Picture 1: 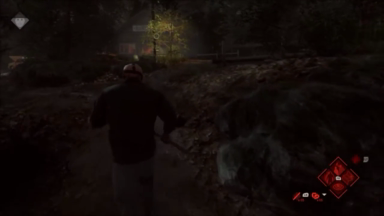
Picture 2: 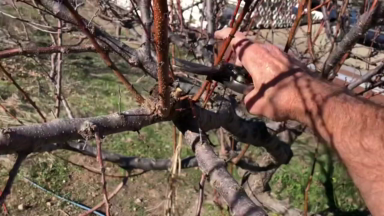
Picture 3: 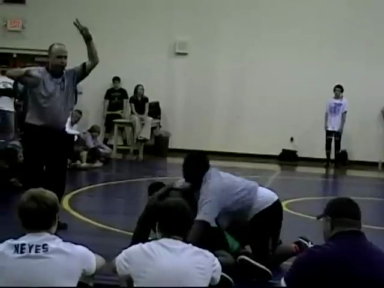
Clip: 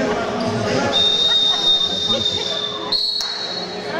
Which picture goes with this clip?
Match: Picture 3